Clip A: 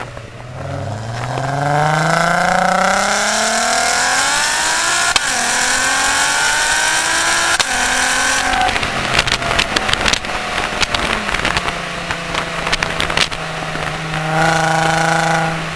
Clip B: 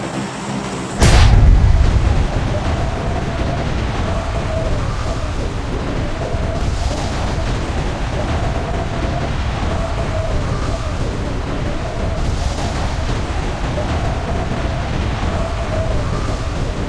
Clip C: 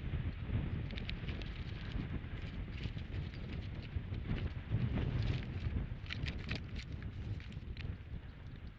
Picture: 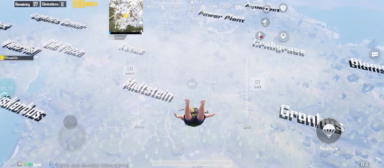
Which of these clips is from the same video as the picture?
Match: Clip B